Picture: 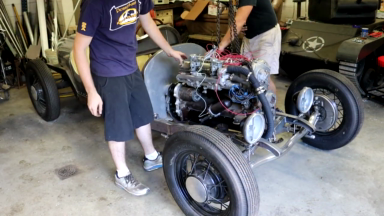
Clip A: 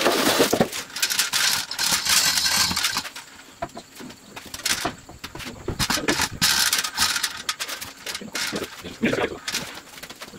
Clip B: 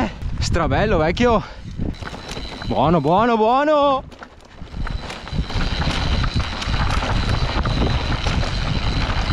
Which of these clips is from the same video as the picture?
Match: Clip A